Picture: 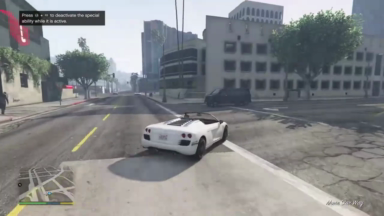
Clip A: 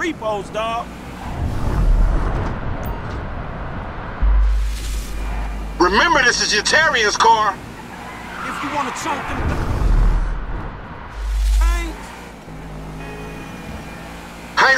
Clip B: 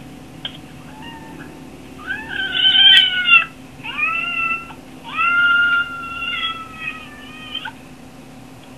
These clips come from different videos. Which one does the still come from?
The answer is A